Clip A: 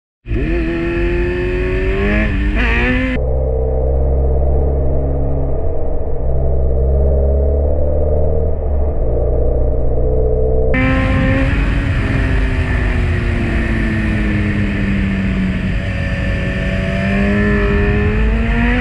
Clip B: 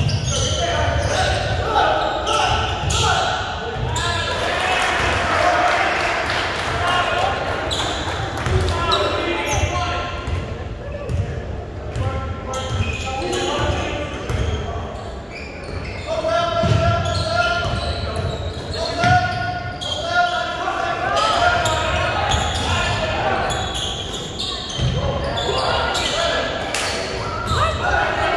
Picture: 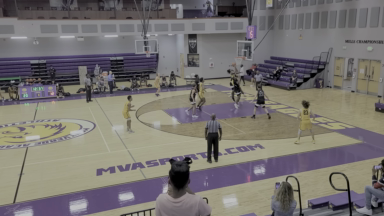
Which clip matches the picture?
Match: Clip B